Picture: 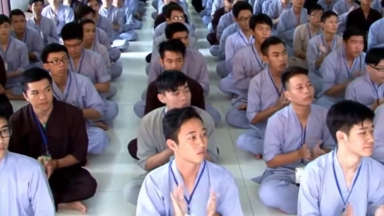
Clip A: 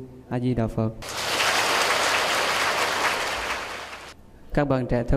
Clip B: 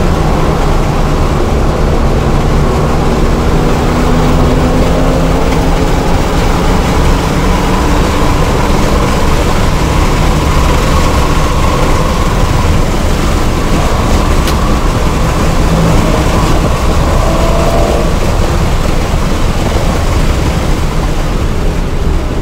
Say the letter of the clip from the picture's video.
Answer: A